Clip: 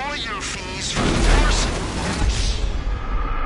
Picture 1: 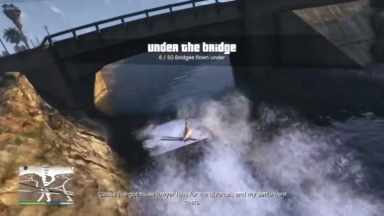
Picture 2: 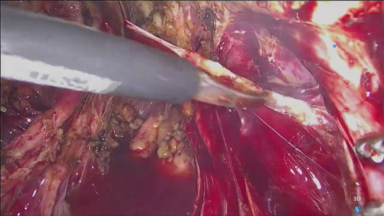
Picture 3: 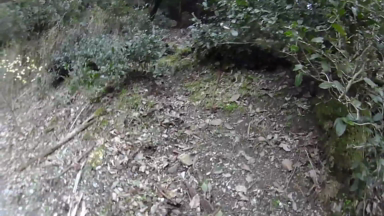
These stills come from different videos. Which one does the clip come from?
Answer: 1